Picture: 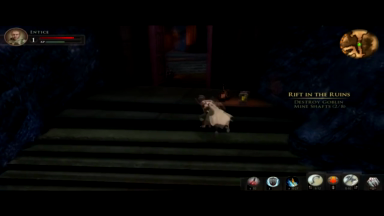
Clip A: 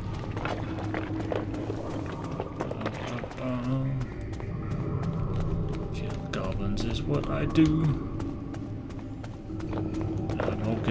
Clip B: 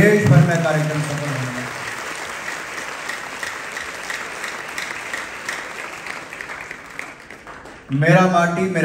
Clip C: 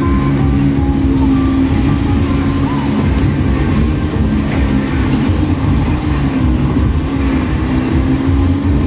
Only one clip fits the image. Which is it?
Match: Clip A